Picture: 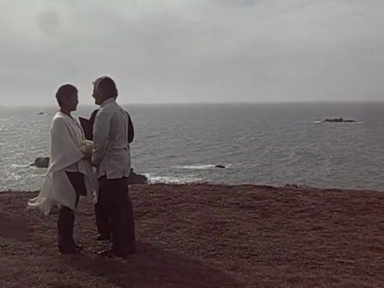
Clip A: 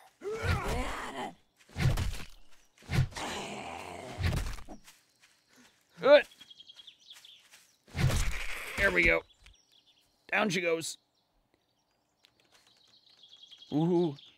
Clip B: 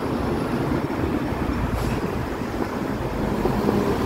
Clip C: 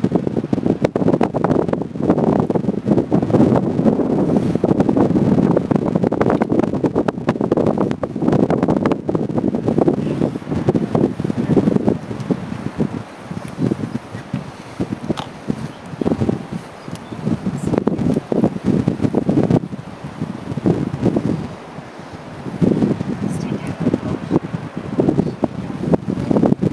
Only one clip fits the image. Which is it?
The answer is C